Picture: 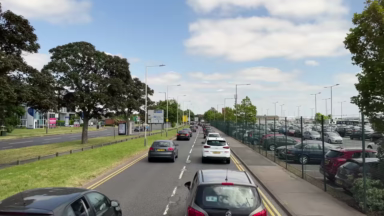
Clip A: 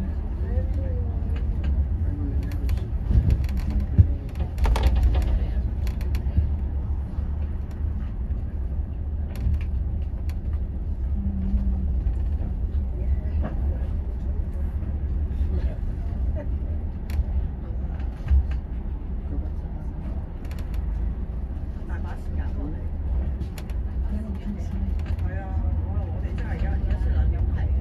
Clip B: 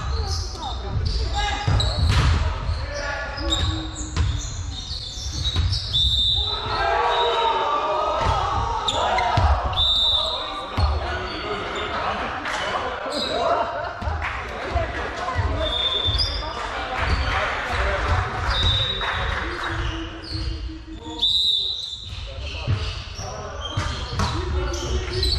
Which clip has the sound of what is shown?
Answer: A